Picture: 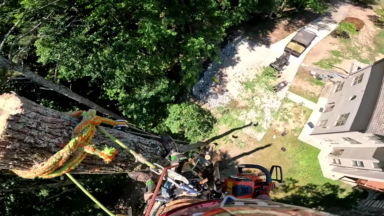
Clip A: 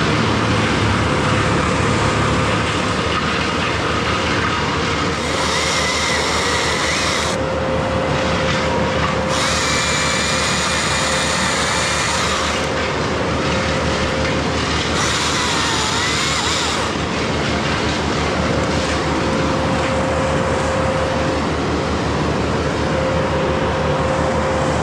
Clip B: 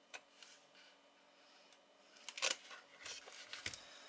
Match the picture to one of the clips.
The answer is A